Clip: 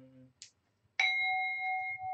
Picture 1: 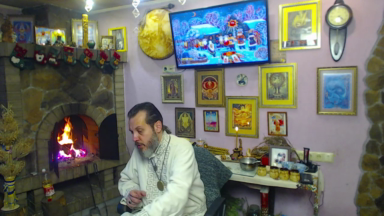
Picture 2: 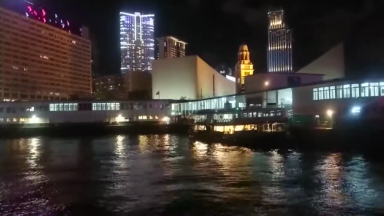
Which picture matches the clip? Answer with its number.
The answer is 1